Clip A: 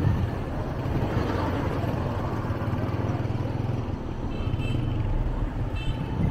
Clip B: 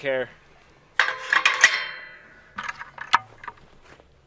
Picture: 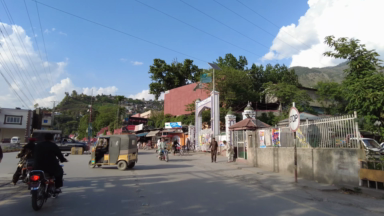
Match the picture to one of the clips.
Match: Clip A